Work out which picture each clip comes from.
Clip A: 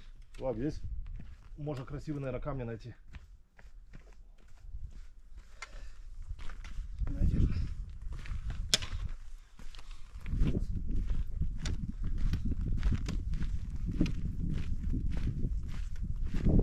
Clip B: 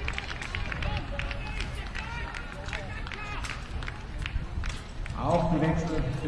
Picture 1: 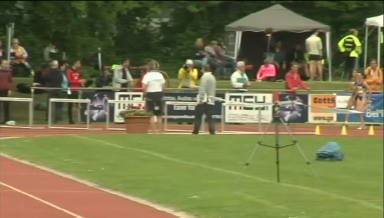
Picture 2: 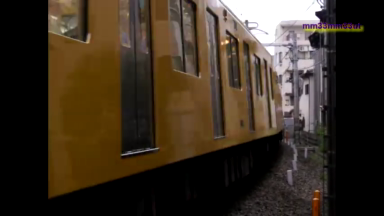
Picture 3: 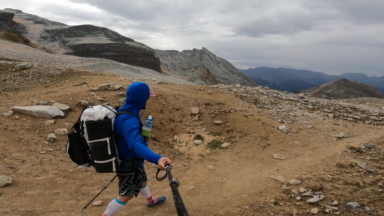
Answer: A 3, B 1